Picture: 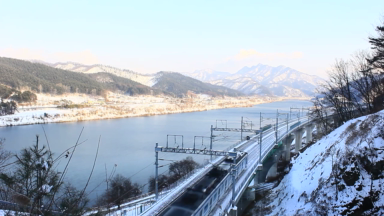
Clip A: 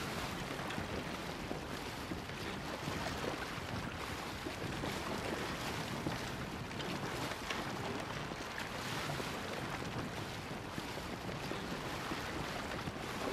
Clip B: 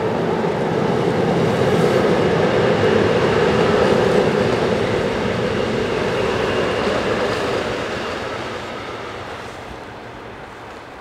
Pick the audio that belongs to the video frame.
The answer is B